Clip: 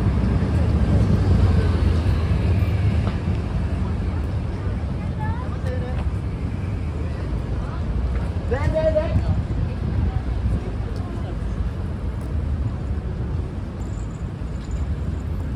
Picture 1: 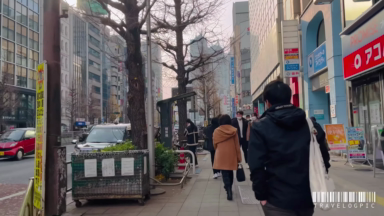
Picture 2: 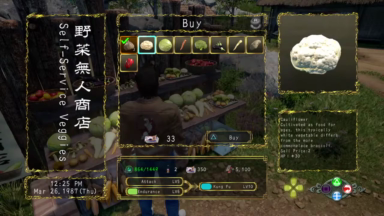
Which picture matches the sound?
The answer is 1